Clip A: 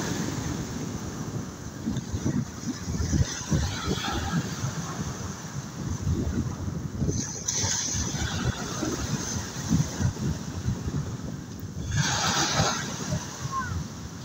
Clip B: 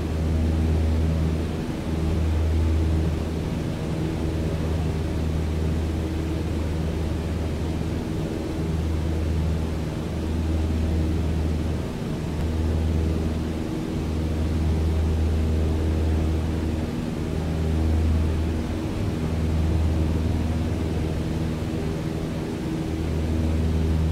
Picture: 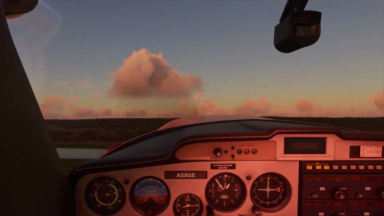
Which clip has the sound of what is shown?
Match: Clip B